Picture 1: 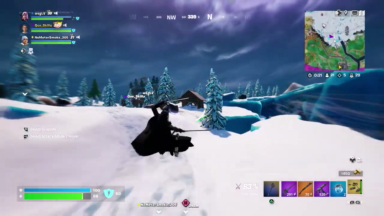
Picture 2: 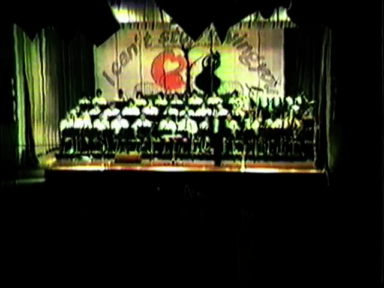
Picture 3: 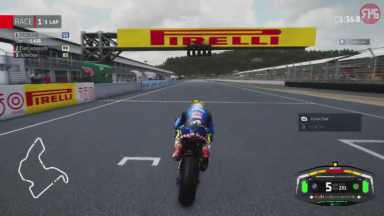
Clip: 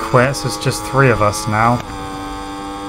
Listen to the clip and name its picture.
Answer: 3